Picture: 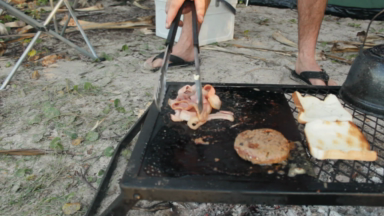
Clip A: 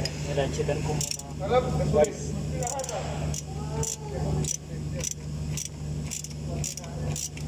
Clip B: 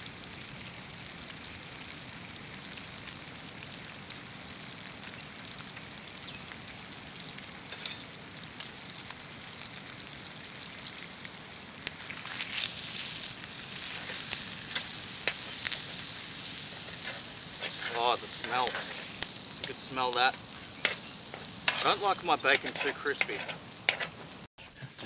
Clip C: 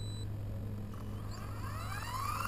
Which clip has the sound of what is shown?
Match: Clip B